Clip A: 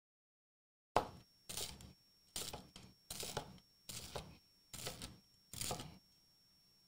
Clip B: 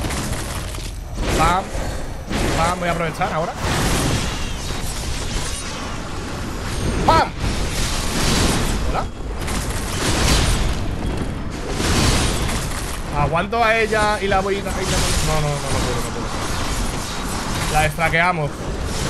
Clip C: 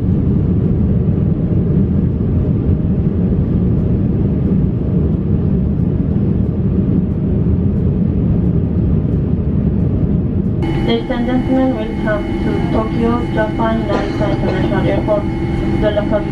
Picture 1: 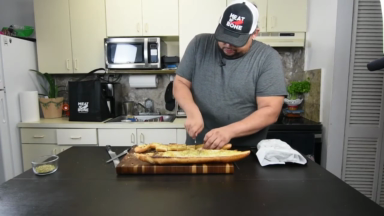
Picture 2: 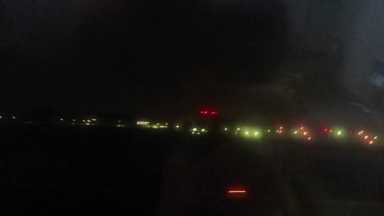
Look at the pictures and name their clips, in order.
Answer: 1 A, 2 C